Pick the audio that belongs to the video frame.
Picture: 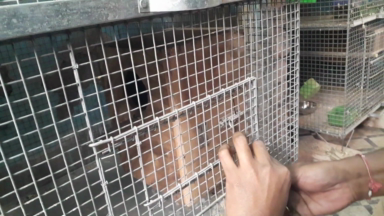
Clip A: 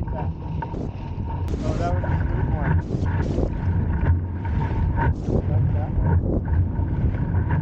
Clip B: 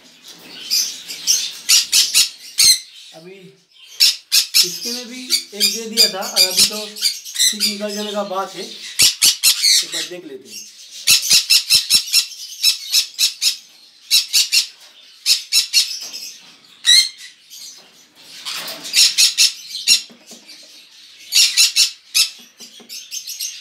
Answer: B